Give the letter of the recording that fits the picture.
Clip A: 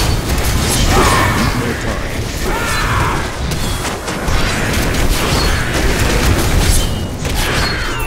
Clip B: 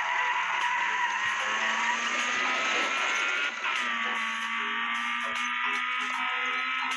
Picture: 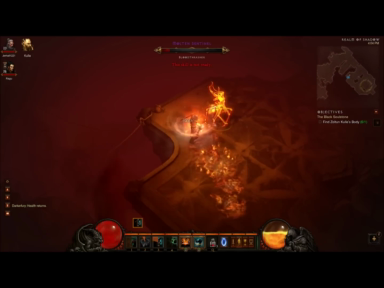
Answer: A